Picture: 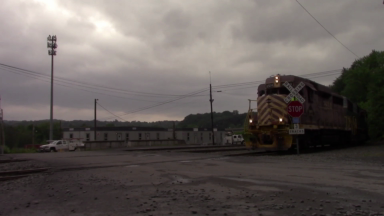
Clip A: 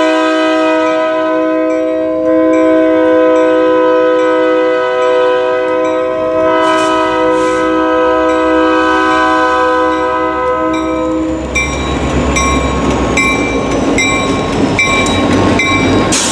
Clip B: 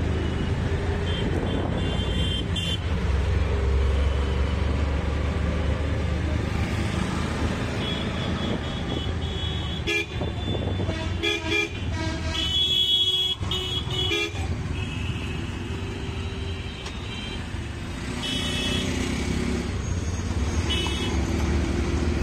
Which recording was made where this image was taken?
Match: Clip A